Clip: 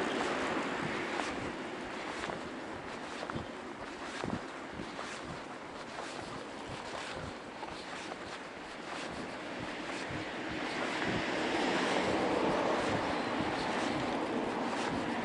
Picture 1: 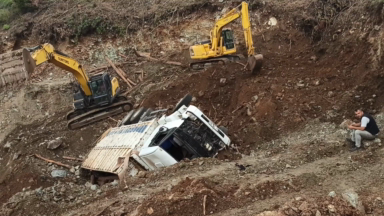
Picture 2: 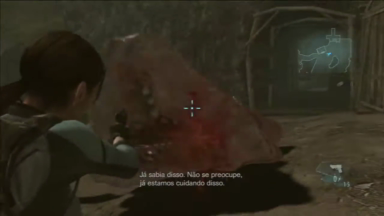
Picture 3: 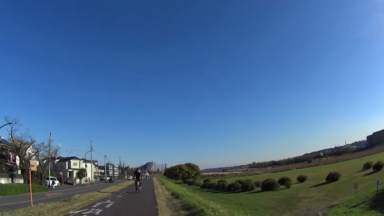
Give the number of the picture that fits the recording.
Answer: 3